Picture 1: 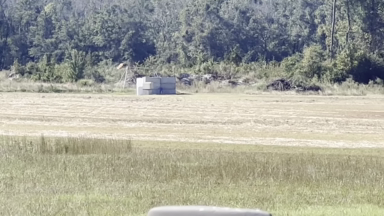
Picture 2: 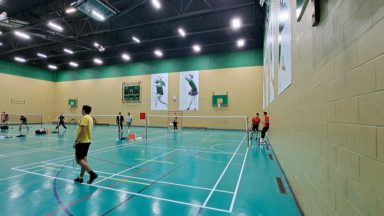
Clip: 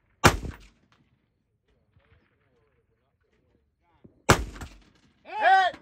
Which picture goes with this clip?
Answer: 1